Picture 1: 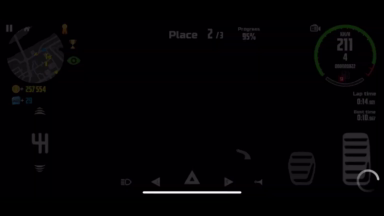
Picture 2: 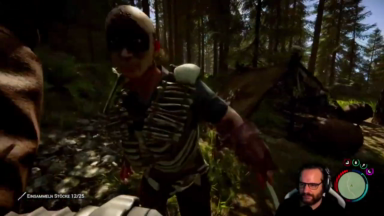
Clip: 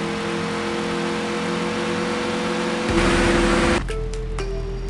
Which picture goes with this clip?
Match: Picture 1